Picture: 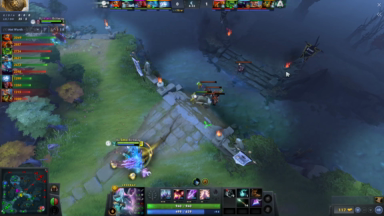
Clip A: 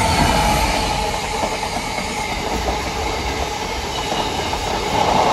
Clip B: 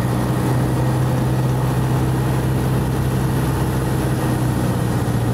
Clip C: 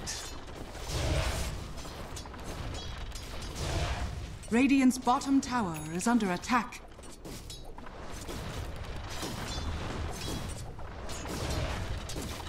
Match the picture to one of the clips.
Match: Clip C